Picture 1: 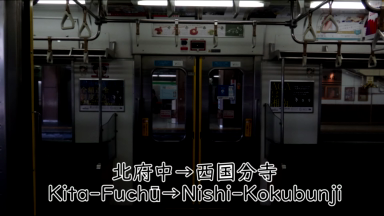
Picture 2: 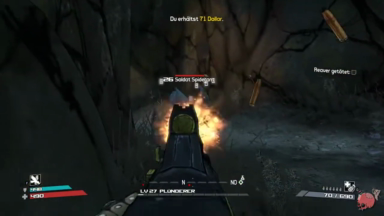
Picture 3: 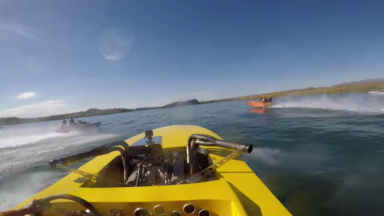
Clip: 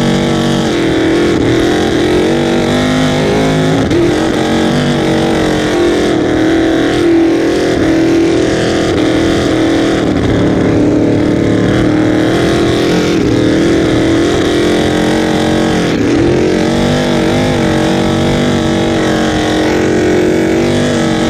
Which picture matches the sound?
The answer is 3